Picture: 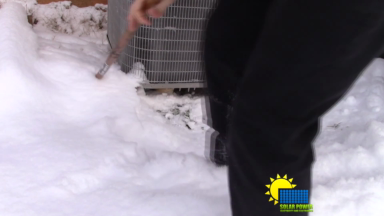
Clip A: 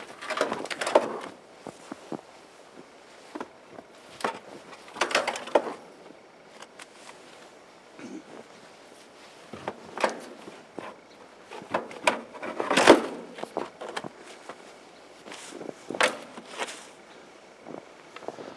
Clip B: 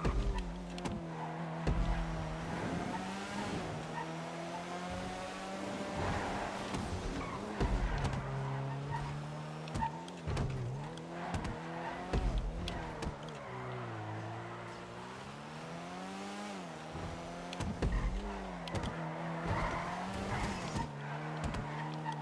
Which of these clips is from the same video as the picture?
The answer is A